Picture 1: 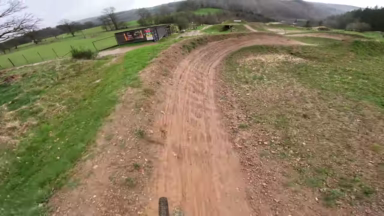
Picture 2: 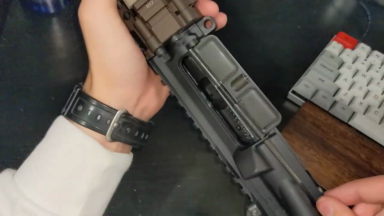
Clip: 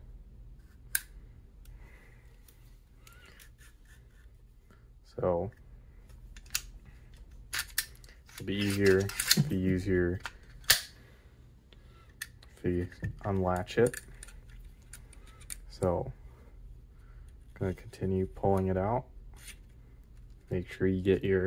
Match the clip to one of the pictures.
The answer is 2